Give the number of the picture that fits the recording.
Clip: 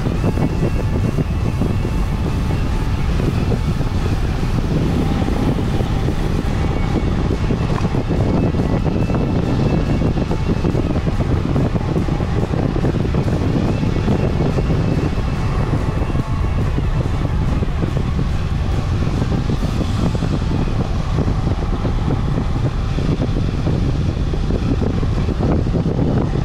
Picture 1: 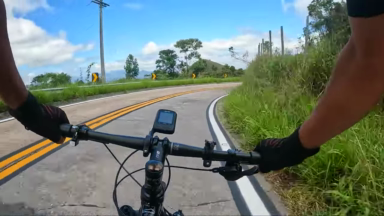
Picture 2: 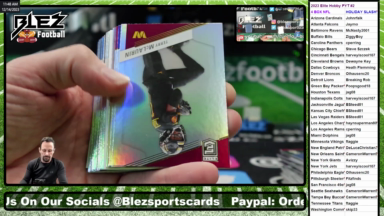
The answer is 1